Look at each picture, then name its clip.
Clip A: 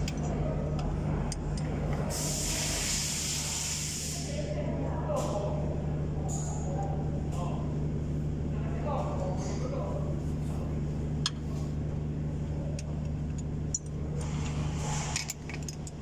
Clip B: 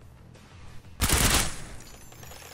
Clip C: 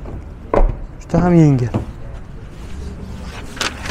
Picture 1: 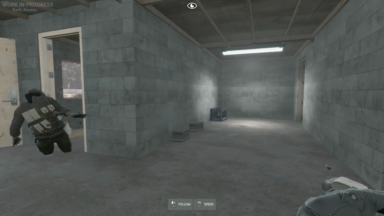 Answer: B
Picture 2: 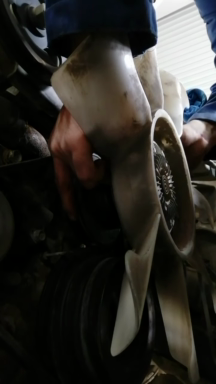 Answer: A